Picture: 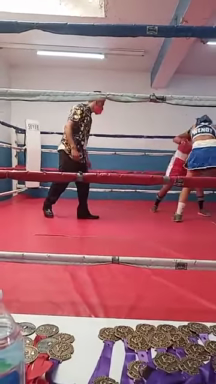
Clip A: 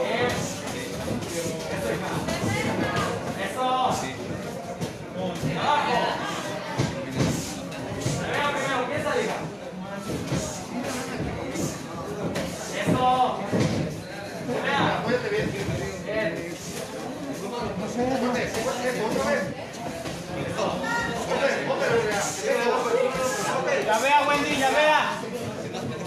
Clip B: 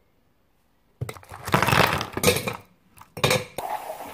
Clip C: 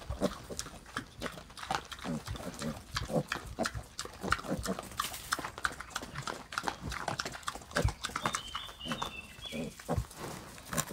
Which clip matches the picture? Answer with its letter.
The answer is A